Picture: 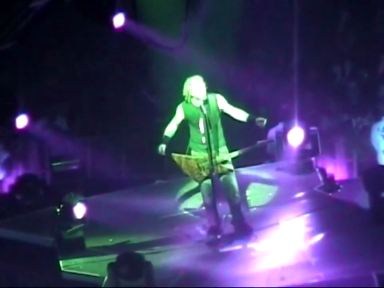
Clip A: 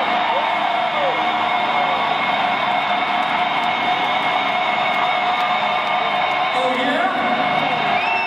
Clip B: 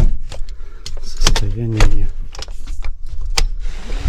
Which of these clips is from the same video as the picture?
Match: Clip A